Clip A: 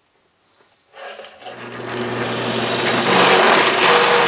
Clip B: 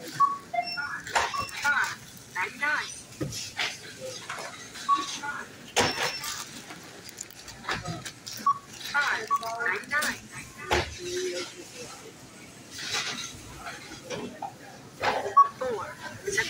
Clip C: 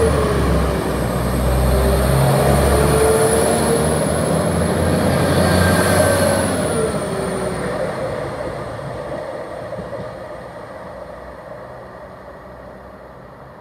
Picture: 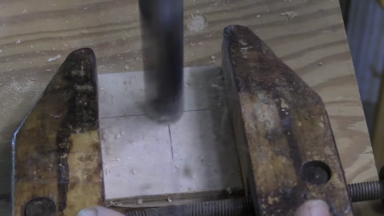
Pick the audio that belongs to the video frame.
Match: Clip A